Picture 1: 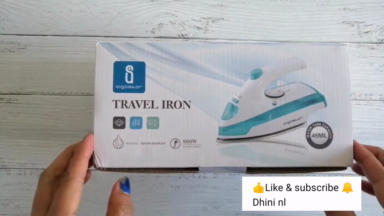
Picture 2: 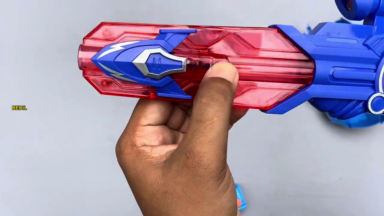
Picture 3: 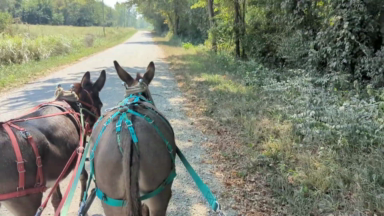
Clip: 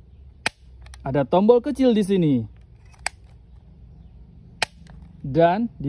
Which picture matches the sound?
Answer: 2